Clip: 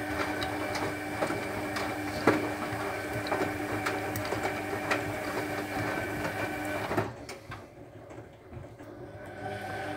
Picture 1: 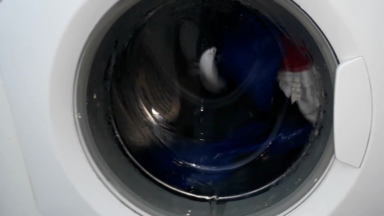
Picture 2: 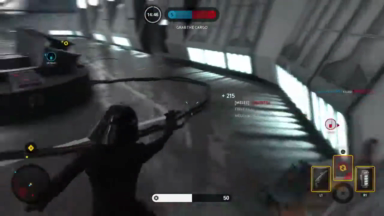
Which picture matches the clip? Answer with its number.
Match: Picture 1